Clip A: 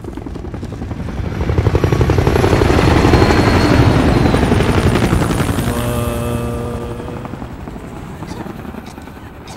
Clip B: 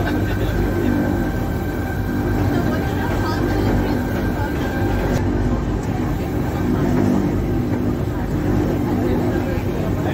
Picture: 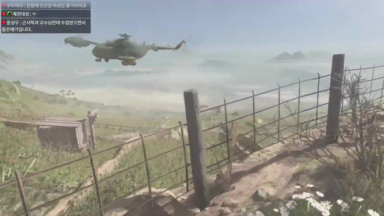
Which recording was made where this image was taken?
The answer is A